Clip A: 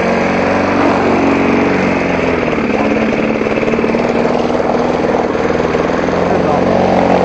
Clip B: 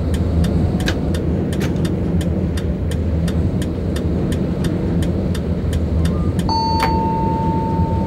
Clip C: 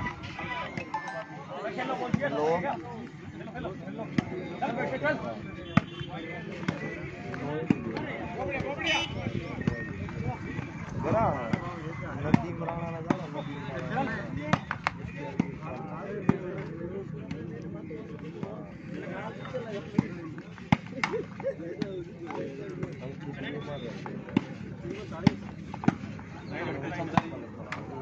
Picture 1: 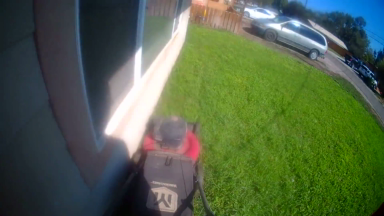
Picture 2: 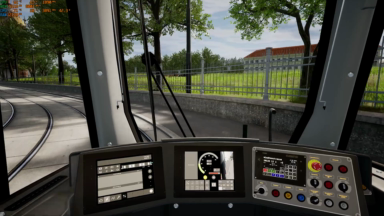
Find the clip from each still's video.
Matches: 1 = A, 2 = B